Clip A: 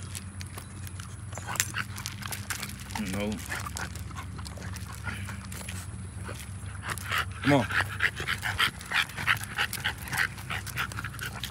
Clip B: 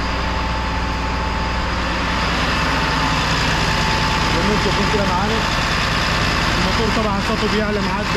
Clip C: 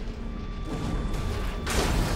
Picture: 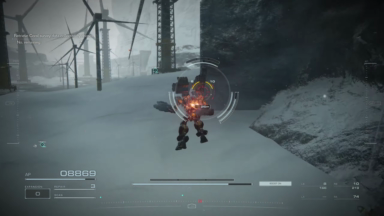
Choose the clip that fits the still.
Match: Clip C